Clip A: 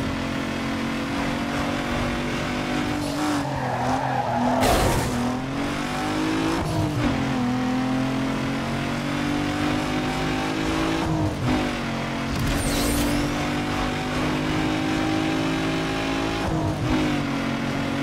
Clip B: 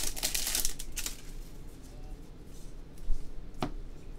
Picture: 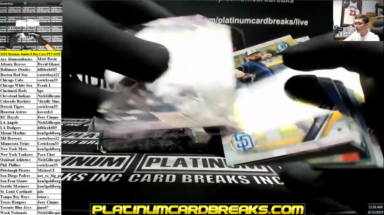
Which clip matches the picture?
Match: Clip B